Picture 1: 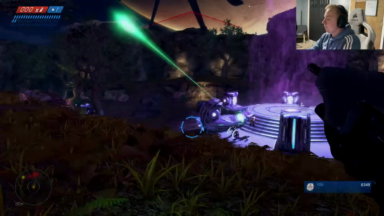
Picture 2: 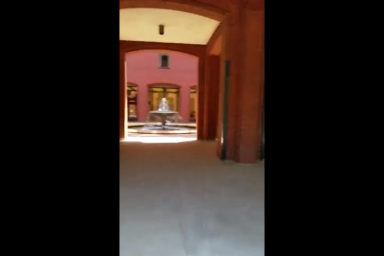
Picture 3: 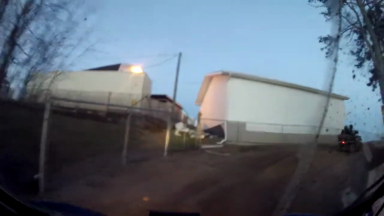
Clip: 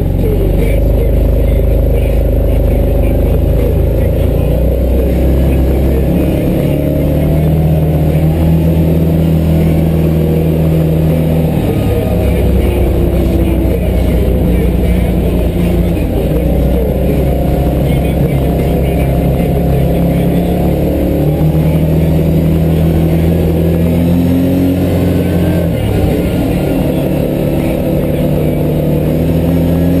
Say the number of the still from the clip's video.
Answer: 3